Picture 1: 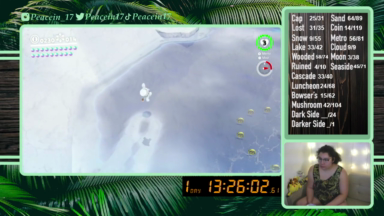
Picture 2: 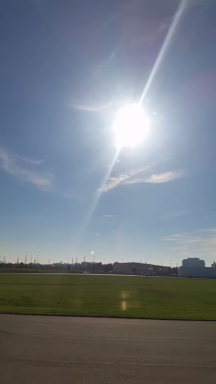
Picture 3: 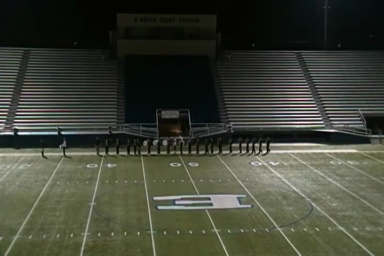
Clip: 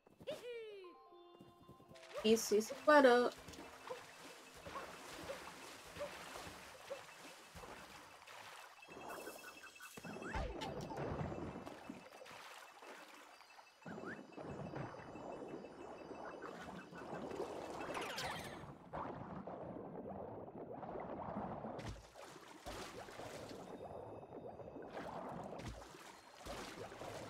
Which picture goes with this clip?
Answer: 1